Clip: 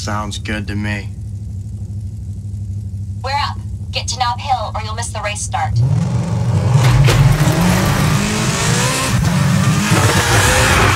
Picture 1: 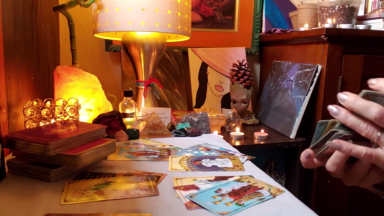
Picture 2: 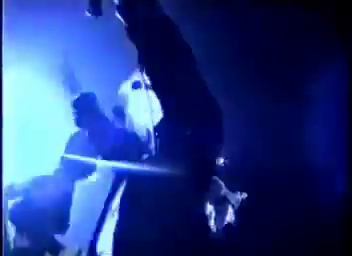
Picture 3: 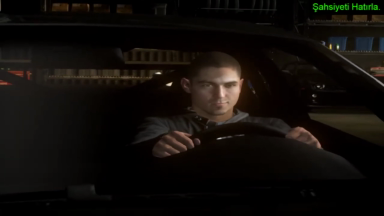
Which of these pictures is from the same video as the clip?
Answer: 3